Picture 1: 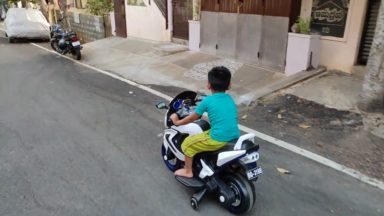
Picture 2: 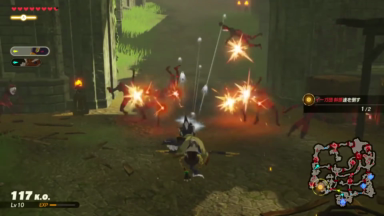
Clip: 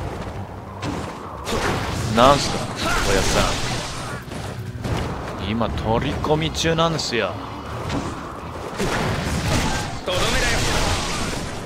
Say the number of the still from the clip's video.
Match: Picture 2